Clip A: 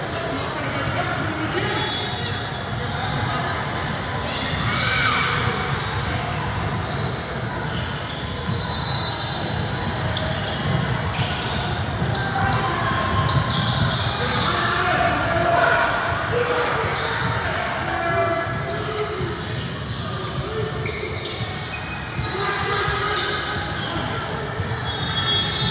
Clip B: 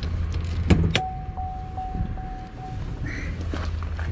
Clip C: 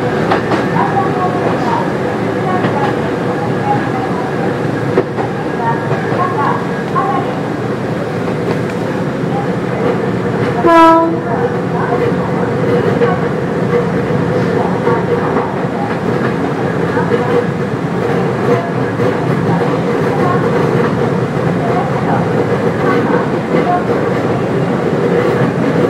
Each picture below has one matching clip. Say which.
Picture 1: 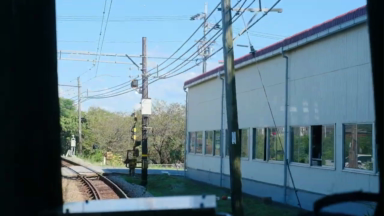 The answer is C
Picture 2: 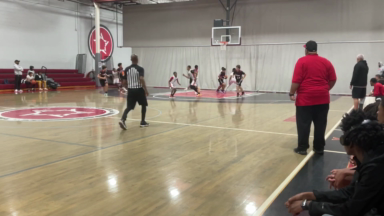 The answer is A